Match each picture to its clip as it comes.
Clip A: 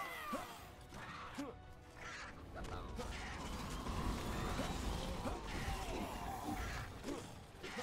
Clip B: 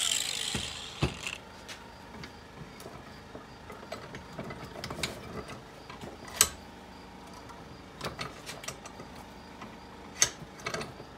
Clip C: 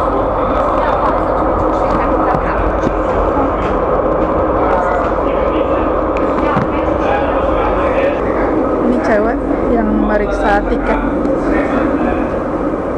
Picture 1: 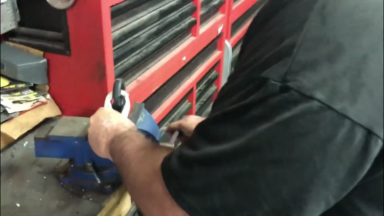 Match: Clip B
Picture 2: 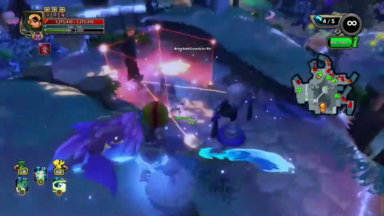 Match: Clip A